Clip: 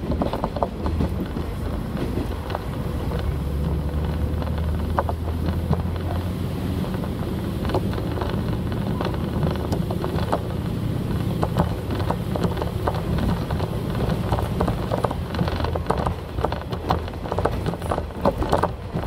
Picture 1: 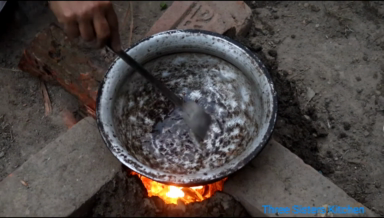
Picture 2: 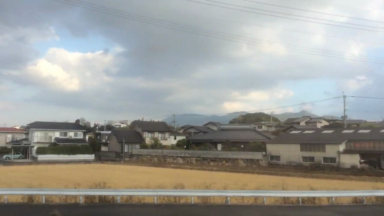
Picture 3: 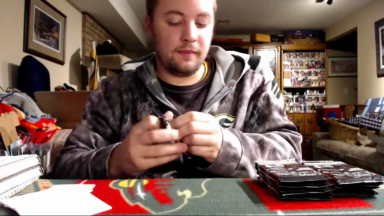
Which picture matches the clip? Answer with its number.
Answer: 2